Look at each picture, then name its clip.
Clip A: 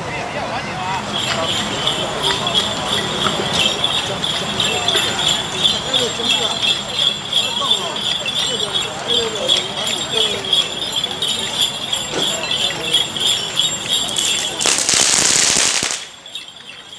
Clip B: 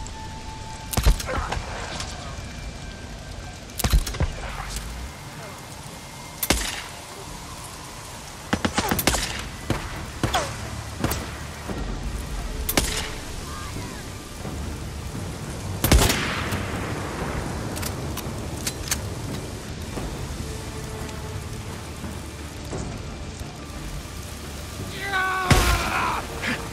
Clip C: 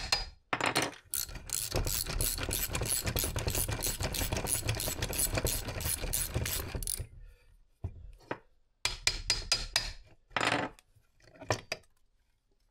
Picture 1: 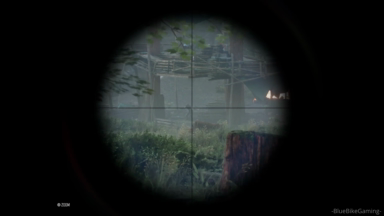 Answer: B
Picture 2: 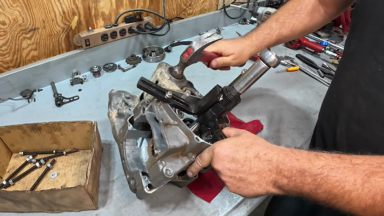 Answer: C